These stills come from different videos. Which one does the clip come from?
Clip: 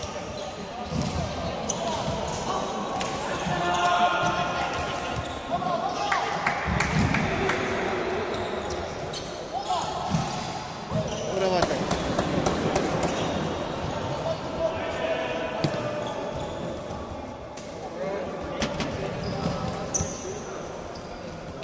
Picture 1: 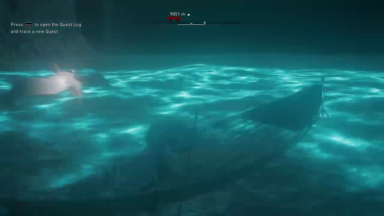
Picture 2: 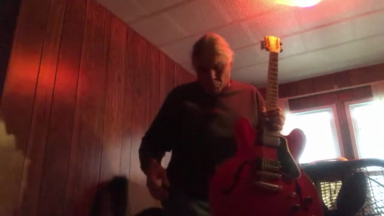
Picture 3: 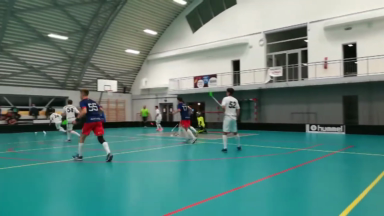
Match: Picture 3